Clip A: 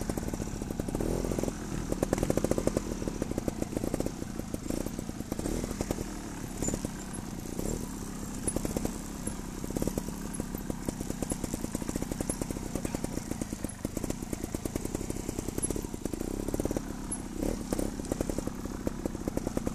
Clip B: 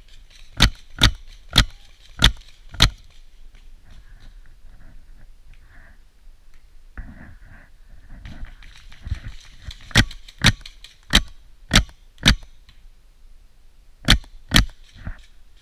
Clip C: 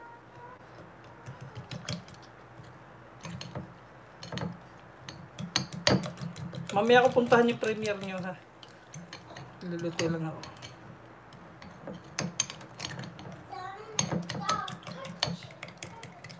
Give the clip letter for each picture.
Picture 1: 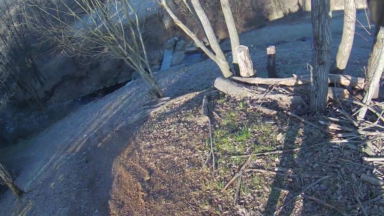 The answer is A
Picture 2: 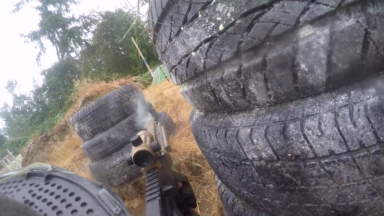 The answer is B